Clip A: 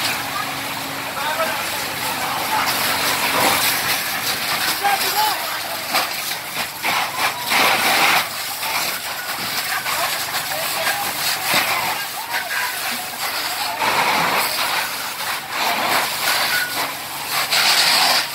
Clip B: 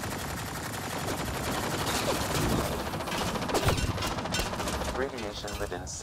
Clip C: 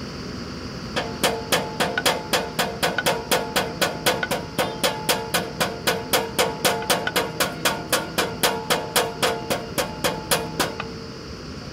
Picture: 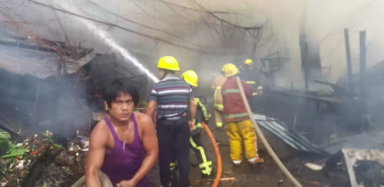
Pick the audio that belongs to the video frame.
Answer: A